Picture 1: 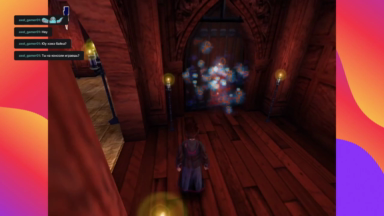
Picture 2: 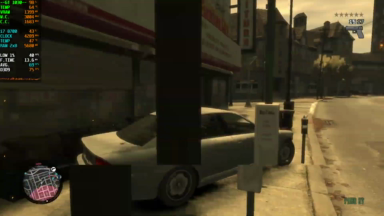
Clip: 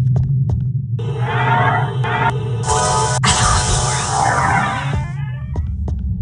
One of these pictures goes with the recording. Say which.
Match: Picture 1